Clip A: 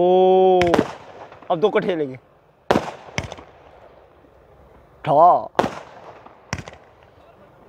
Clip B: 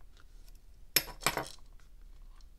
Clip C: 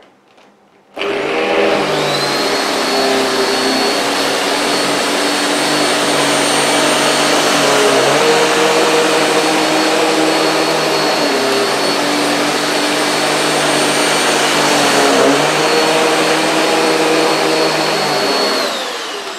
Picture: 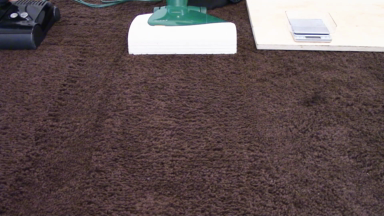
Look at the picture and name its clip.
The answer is C